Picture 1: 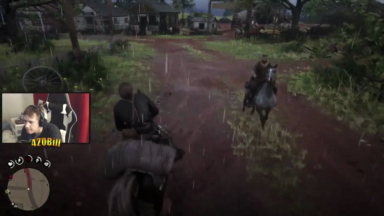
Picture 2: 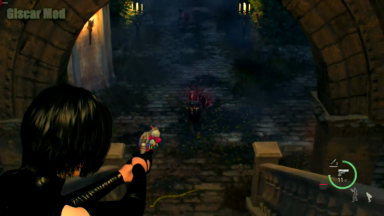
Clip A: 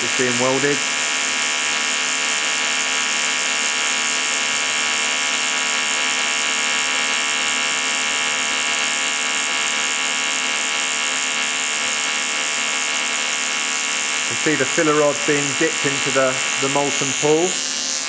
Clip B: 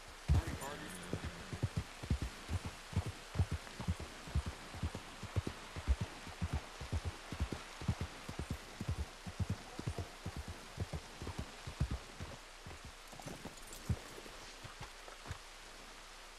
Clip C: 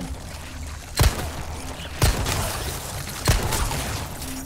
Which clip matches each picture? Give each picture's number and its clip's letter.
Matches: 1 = B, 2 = C